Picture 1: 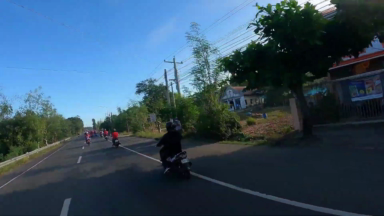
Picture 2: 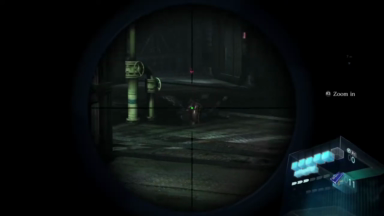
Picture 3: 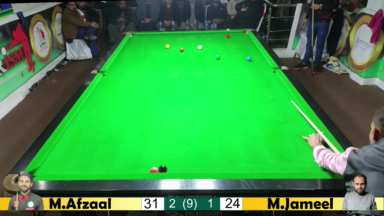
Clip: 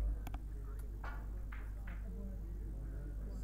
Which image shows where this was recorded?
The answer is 3